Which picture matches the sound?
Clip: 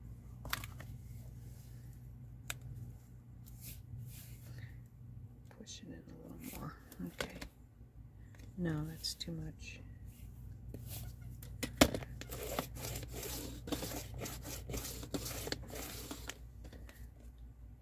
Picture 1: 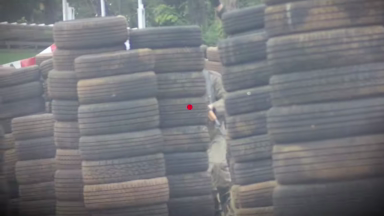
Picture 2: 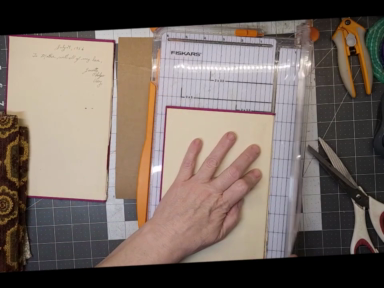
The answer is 2